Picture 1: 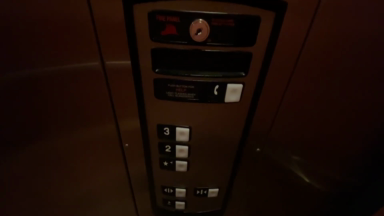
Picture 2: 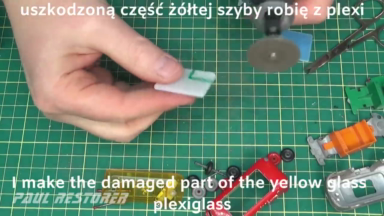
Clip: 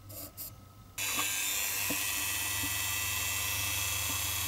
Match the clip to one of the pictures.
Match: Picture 2